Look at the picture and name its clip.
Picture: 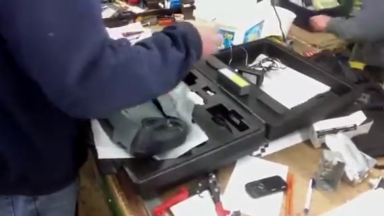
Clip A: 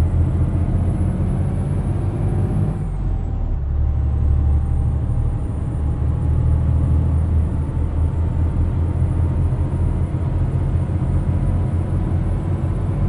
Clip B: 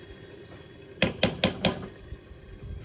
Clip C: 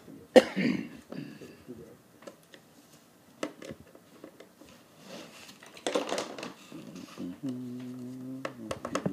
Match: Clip C